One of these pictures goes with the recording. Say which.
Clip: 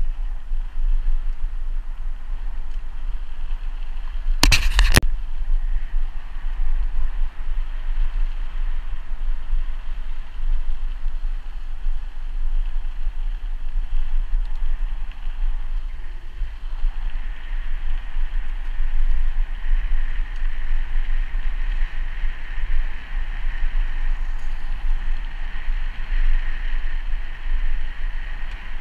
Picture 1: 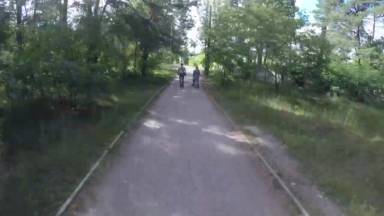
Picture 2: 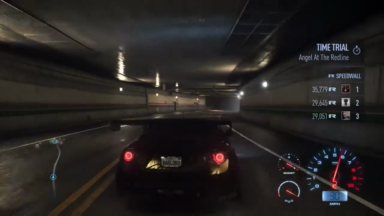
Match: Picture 1